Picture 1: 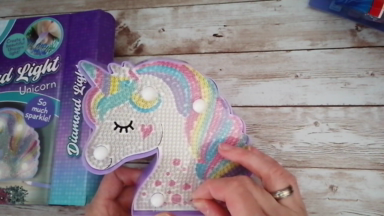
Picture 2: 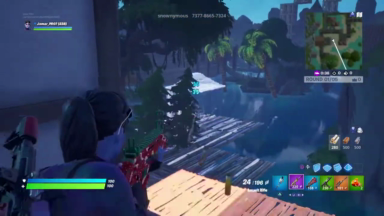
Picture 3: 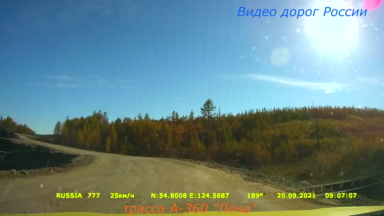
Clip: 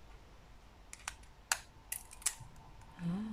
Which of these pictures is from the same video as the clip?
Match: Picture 1